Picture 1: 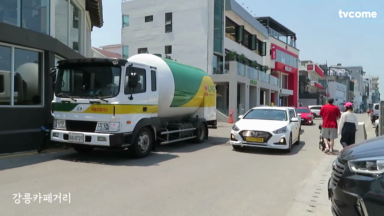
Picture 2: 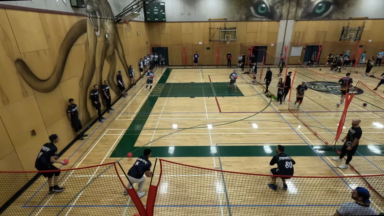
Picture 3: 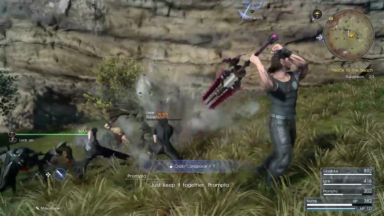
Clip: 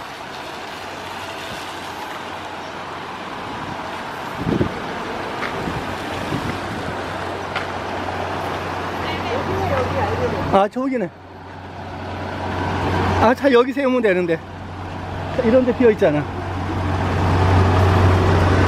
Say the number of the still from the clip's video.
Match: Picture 1